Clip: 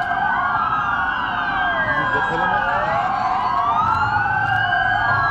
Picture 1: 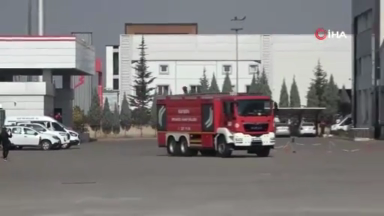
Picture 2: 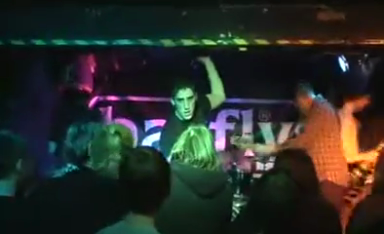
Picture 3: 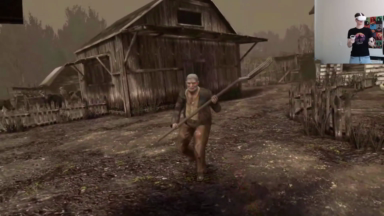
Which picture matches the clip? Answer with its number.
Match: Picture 1